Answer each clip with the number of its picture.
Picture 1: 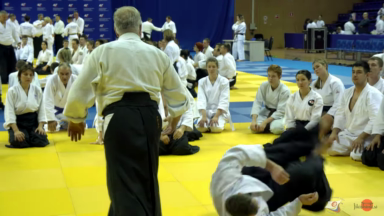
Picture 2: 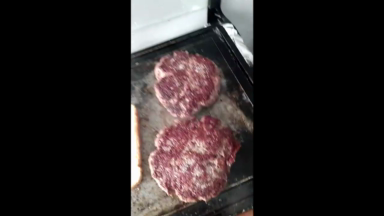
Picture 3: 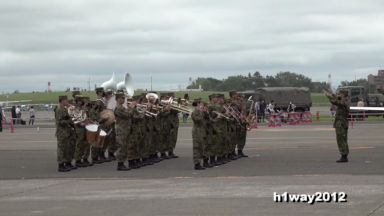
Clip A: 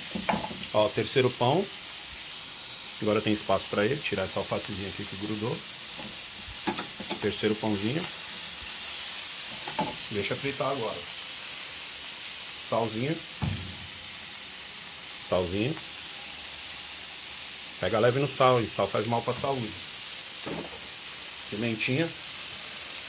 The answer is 2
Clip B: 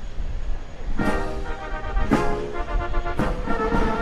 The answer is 3